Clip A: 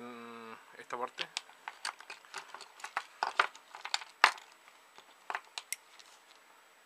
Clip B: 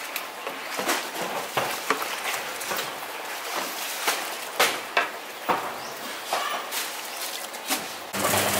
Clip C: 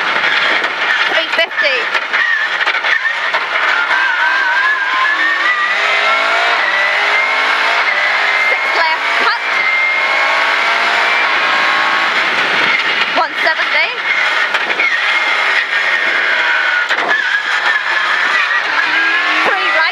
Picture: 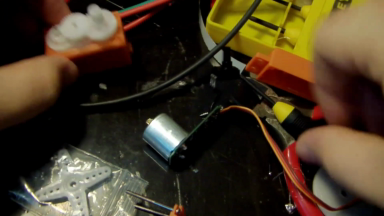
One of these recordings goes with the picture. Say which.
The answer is A